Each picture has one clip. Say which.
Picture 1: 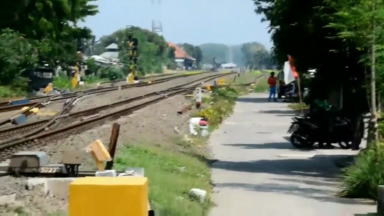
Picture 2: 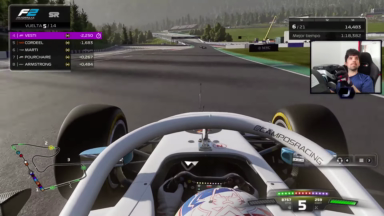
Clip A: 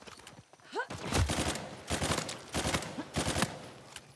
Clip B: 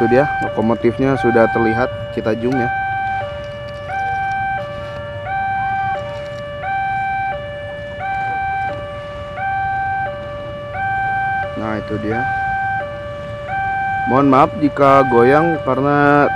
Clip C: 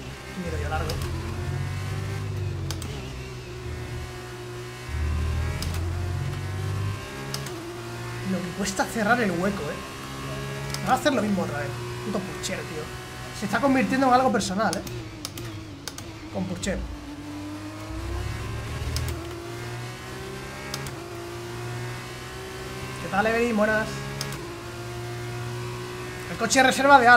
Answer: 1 B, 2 C